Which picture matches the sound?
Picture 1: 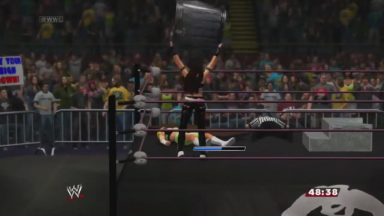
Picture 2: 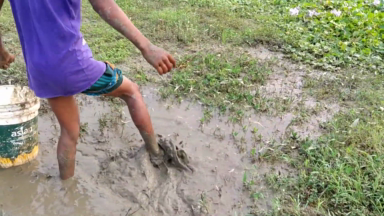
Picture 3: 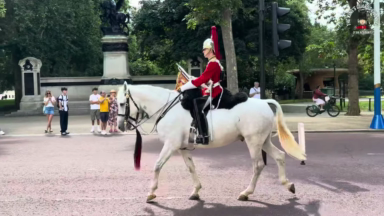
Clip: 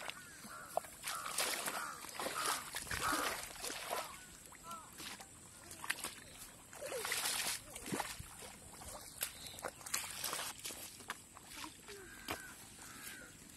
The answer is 2